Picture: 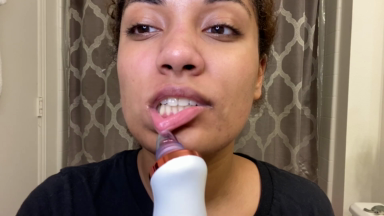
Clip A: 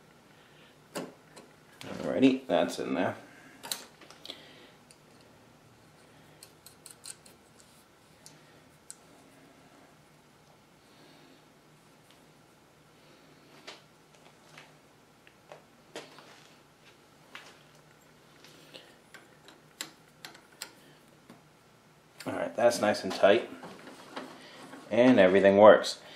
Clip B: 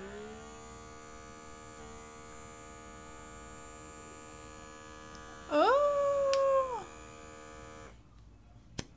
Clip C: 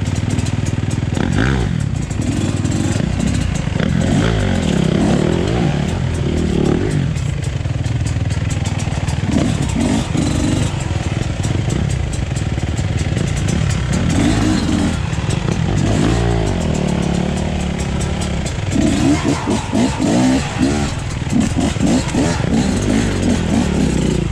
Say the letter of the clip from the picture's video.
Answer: B